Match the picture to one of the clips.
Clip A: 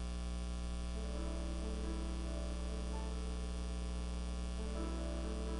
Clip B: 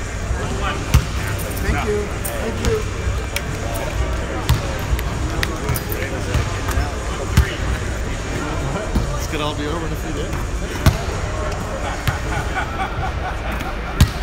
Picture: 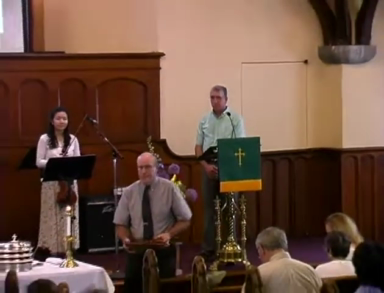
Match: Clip A